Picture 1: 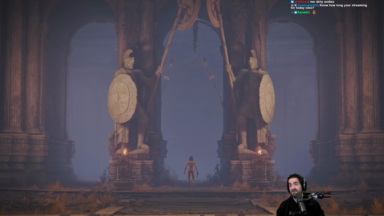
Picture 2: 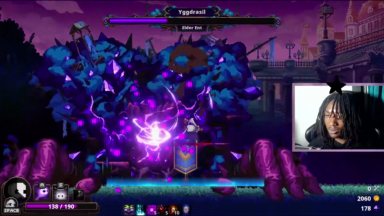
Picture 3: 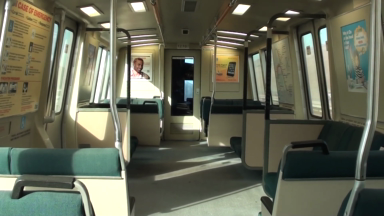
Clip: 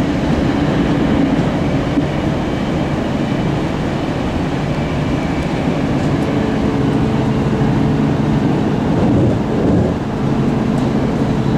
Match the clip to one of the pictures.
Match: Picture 3